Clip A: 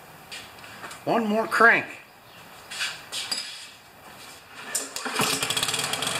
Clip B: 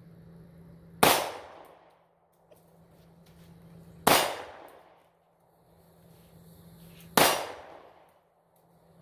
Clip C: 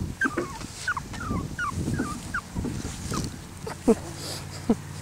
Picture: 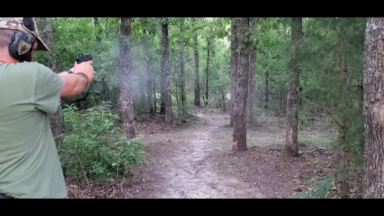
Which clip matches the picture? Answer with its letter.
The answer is B